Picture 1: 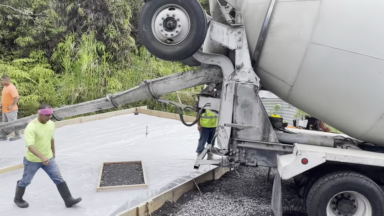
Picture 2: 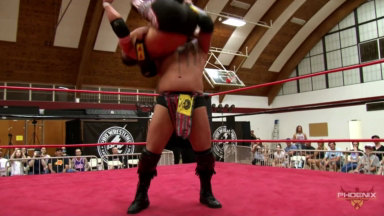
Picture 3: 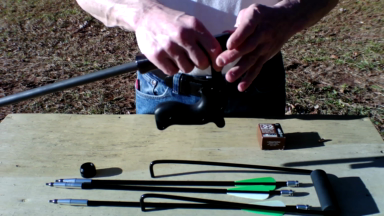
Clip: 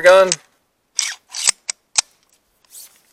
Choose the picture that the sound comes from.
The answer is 3